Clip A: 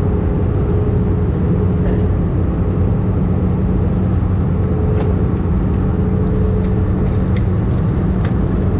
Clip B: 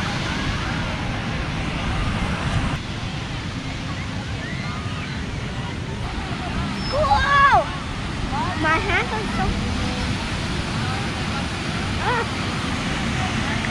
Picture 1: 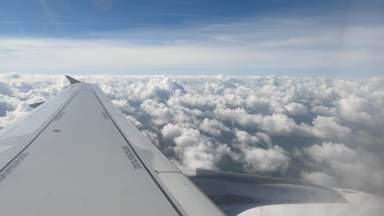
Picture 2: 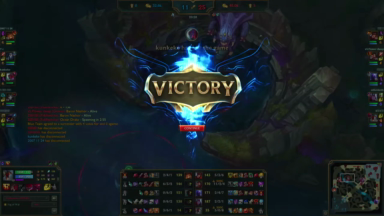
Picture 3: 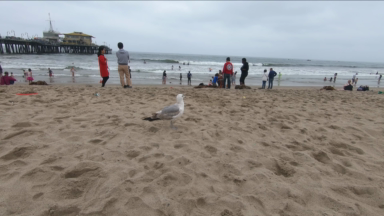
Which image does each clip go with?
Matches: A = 1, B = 3